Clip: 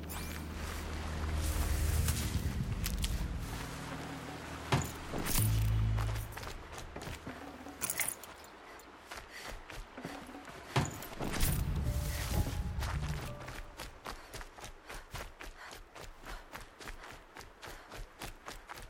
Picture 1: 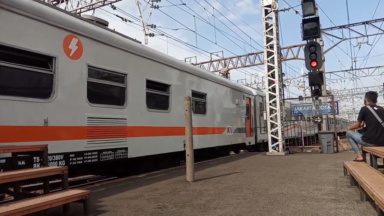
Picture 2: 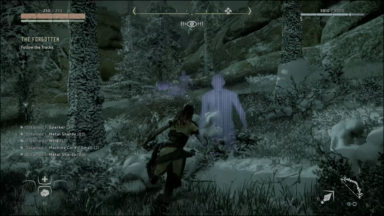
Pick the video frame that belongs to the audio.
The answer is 2